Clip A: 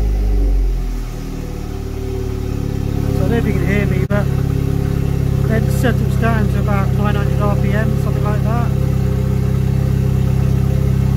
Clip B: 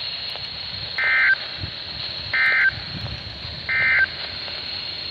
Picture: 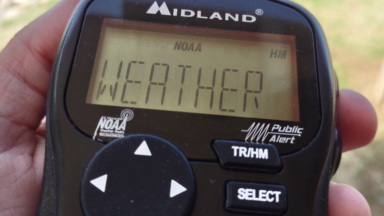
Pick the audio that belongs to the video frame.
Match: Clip B